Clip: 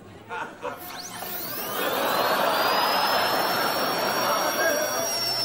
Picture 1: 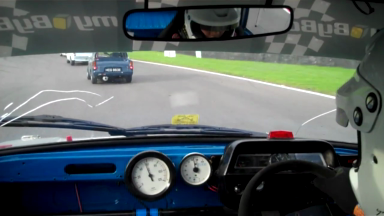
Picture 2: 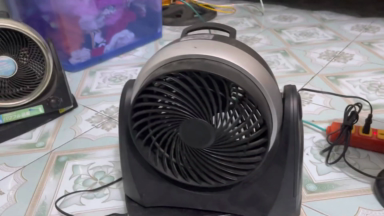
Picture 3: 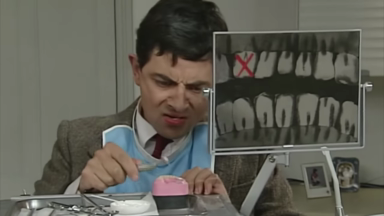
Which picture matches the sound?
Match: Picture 3